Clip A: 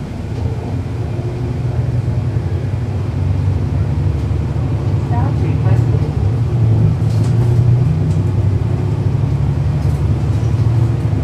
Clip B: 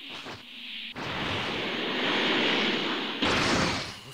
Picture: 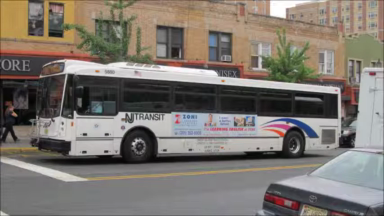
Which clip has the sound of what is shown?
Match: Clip A